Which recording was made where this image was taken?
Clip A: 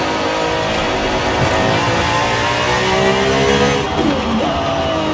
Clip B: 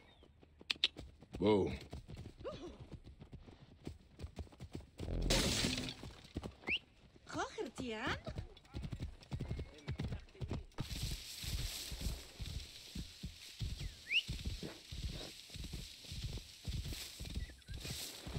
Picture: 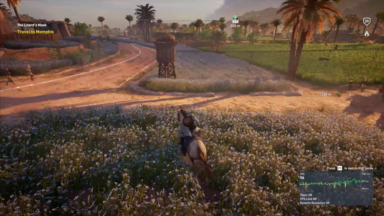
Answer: B